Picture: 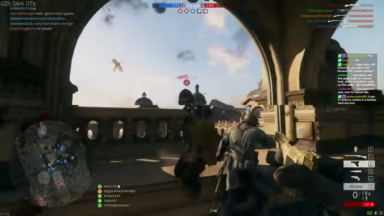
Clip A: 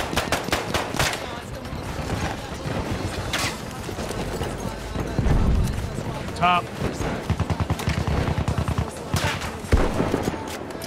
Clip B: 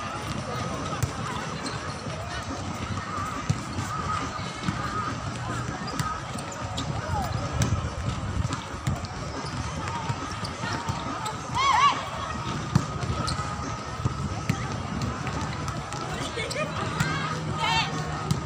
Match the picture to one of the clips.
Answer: A